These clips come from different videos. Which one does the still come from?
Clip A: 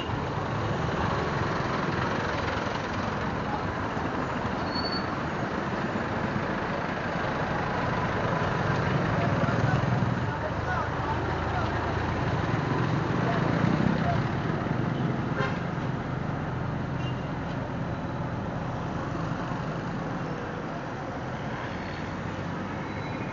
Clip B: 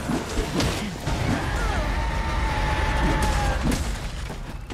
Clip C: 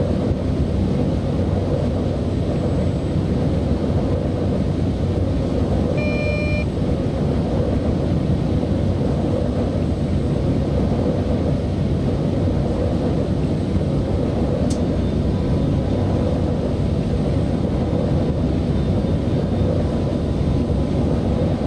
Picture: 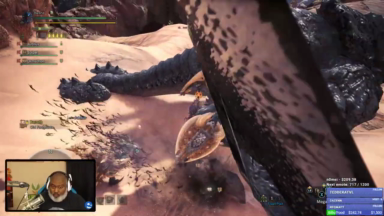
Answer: B